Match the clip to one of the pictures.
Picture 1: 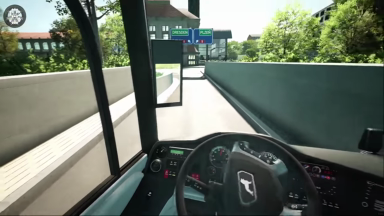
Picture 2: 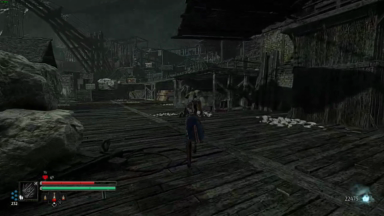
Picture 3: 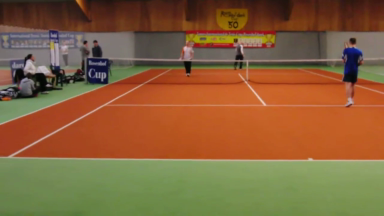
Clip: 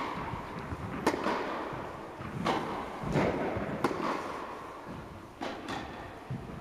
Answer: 3